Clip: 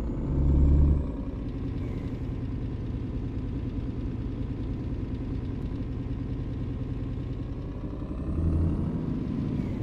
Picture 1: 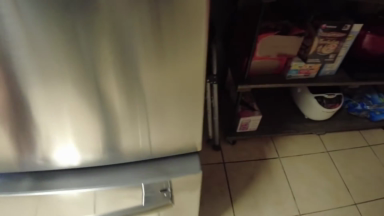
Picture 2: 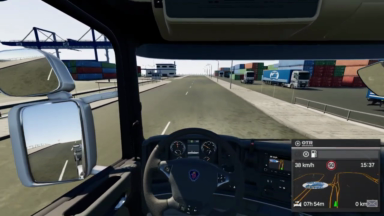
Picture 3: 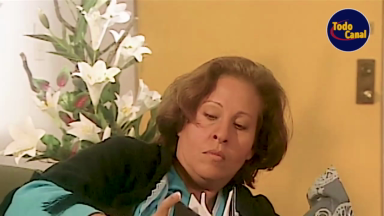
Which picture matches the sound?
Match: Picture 2